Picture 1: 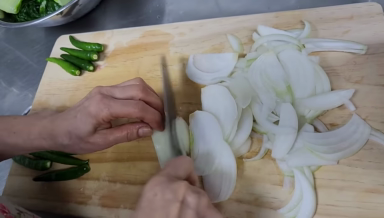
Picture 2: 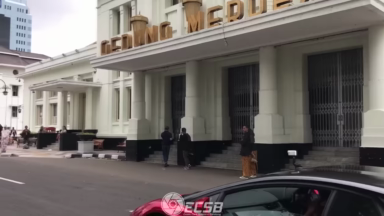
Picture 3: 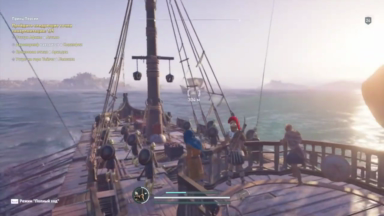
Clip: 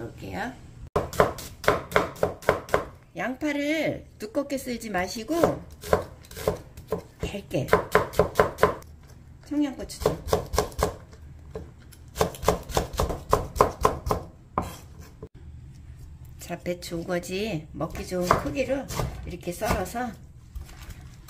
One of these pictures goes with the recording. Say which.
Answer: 1